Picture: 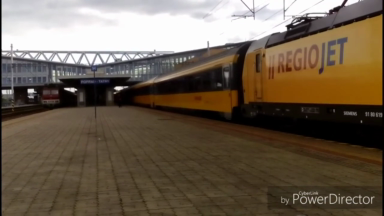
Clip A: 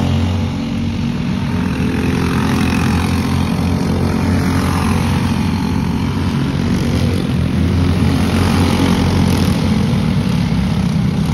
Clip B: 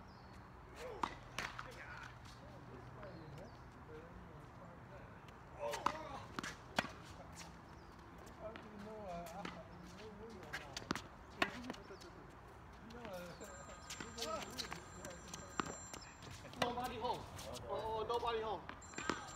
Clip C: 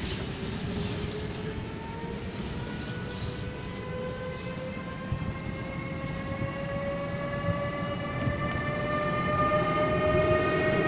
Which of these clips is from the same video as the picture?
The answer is C